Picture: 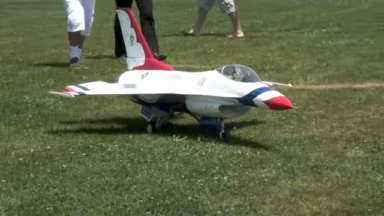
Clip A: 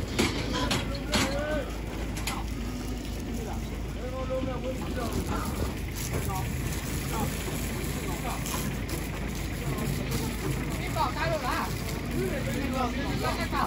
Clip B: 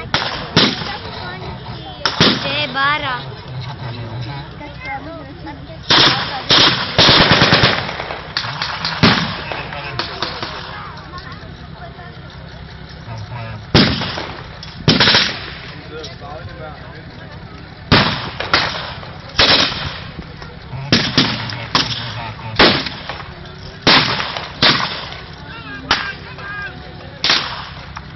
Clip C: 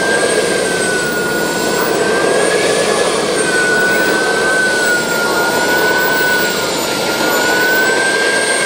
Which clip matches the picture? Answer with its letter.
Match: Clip C